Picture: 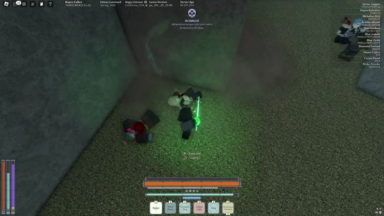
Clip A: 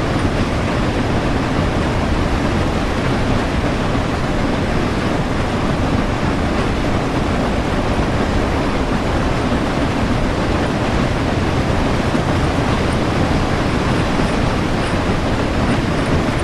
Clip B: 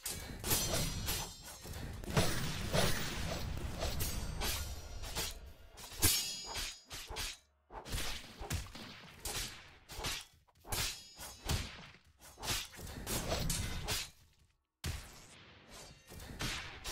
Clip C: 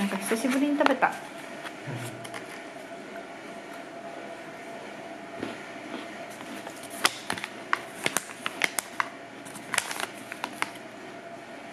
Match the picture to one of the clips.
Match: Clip B